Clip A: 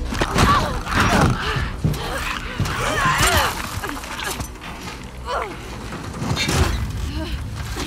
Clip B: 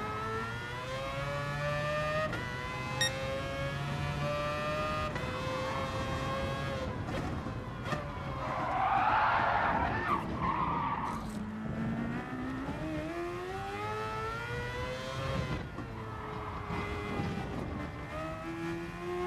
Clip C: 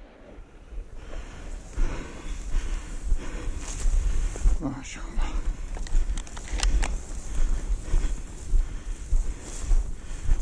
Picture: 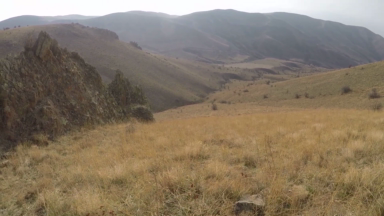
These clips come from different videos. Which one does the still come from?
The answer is C